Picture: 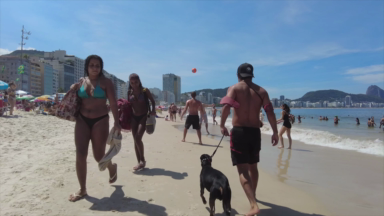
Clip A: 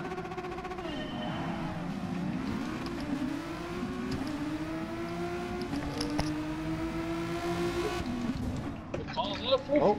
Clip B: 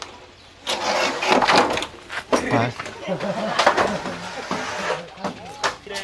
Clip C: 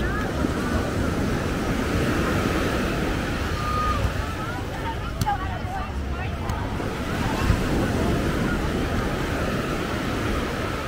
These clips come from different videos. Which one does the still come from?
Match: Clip C